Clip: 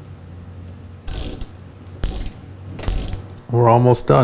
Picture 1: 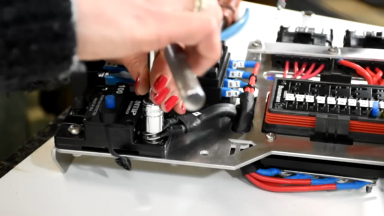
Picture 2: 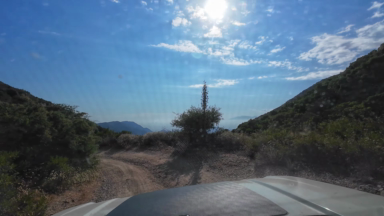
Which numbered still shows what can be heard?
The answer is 1